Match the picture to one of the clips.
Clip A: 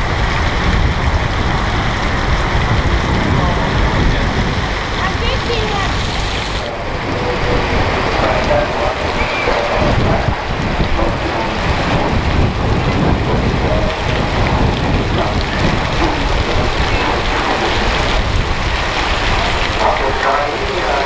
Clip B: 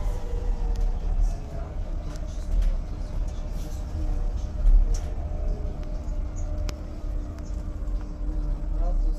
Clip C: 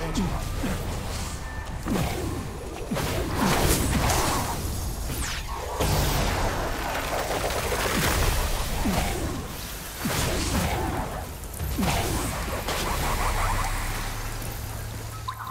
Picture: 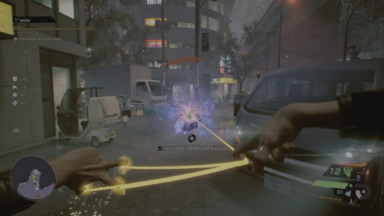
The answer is C